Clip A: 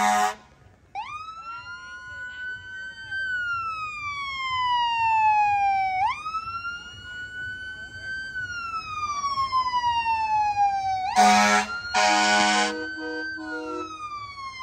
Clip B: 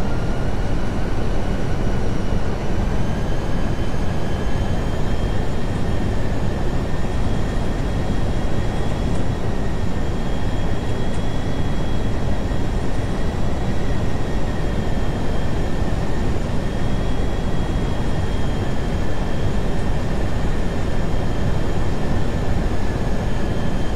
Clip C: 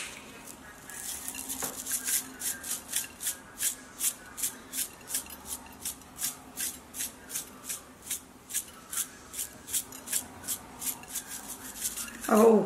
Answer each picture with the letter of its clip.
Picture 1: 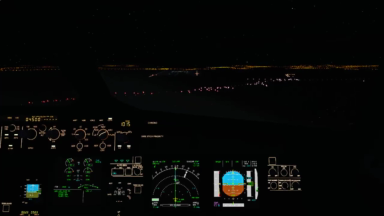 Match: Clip B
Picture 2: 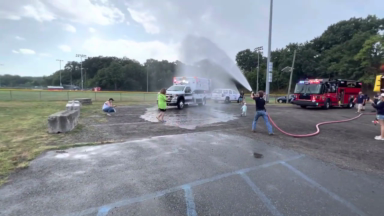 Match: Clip A